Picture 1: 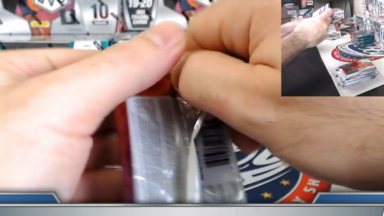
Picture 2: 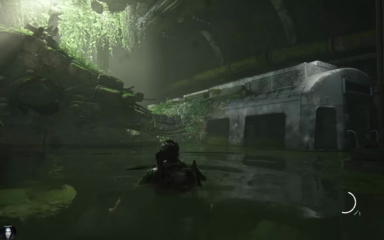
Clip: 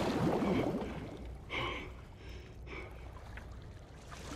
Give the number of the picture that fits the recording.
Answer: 2